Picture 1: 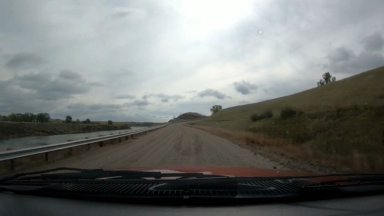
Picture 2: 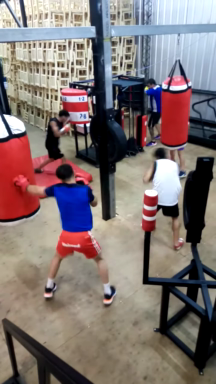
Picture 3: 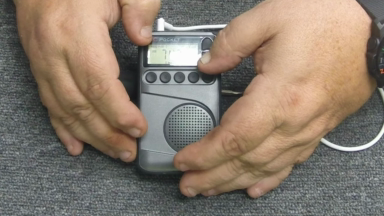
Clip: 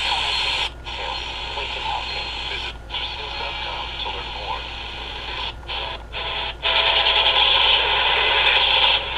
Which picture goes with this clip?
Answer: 3